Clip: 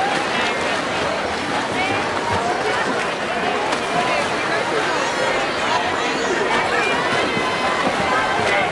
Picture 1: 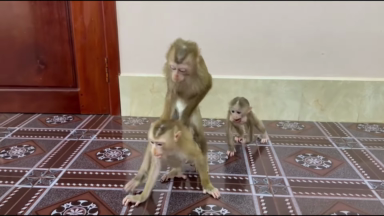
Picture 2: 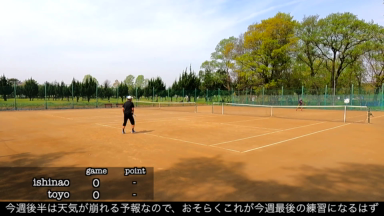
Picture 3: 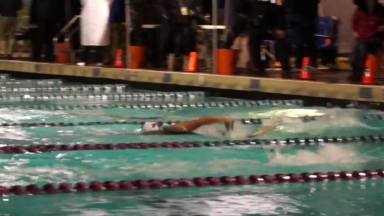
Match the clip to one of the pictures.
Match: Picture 3